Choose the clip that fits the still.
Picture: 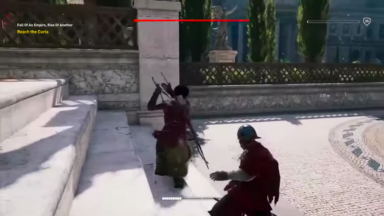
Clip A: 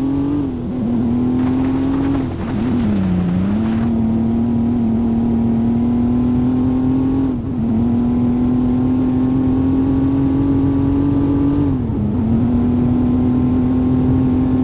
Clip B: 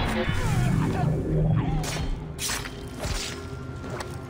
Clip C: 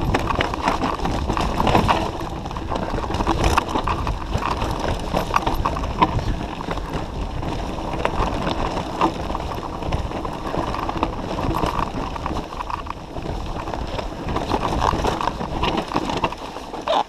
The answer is B